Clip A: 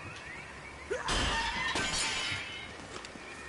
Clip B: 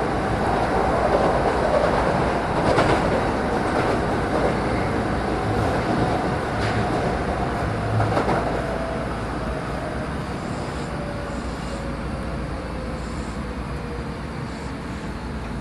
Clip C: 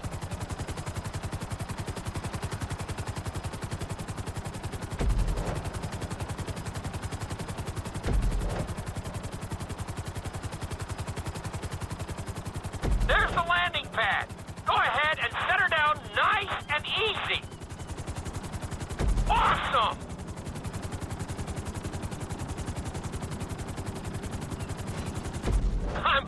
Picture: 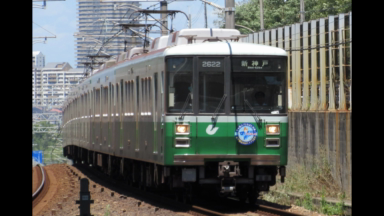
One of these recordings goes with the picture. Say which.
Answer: B